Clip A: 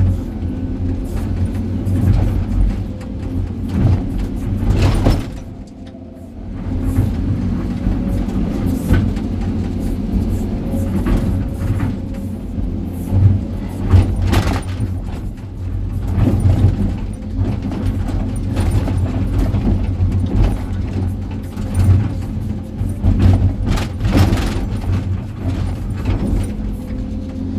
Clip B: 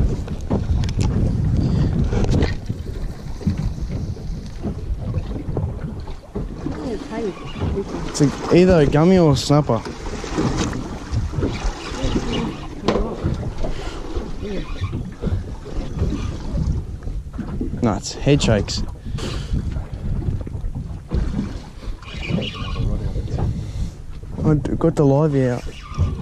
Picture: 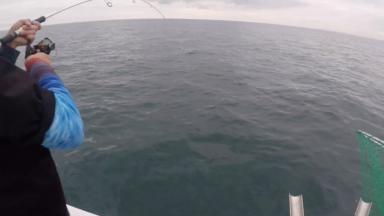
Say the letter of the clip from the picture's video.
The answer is B